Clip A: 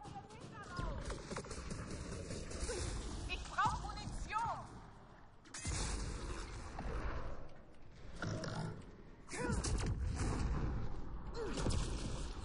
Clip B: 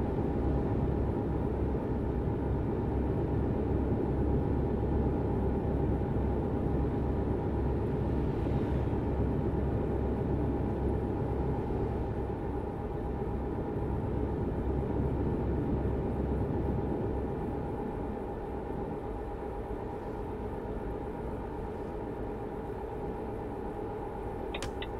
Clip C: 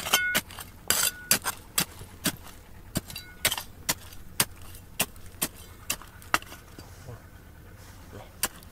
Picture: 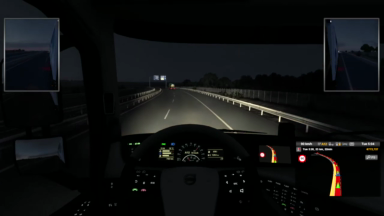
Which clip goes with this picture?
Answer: B